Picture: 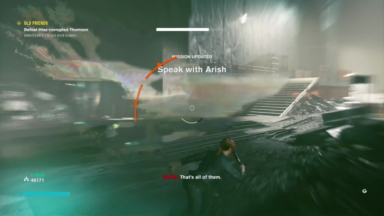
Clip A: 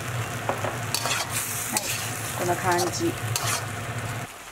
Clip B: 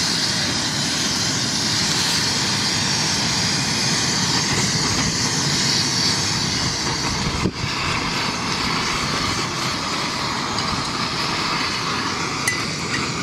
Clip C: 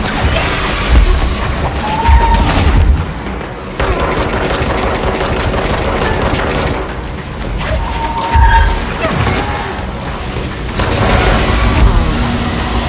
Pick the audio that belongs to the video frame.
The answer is C